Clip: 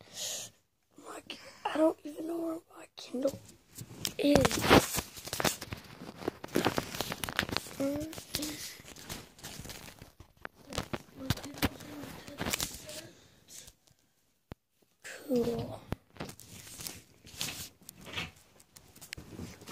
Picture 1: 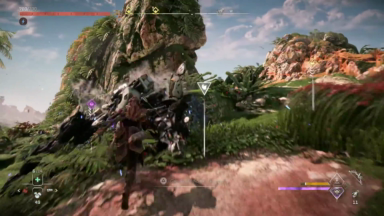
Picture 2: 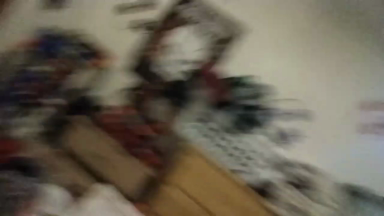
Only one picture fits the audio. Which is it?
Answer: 2